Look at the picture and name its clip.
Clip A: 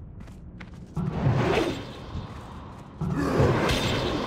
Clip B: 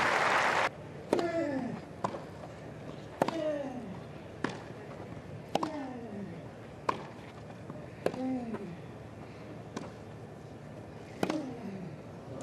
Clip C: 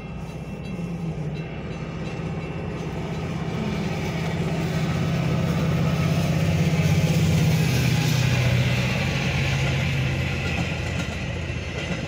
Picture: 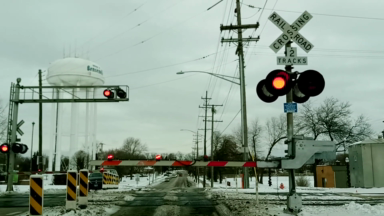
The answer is C